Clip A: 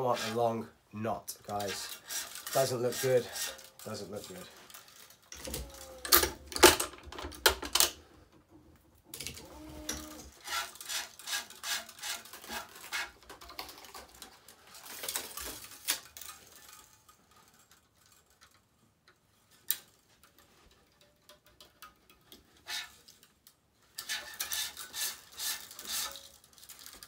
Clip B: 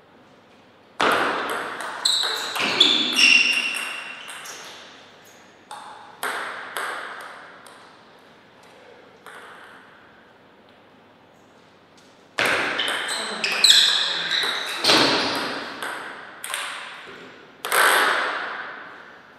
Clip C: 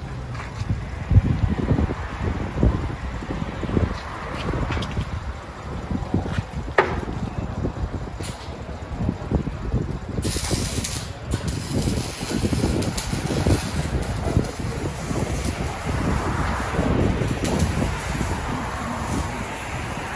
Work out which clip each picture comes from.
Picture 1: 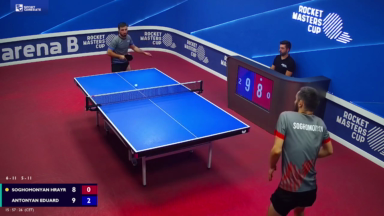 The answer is B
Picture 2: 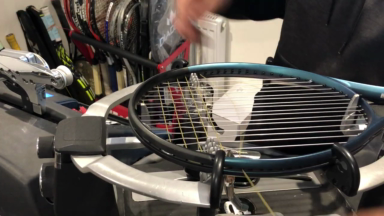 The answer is A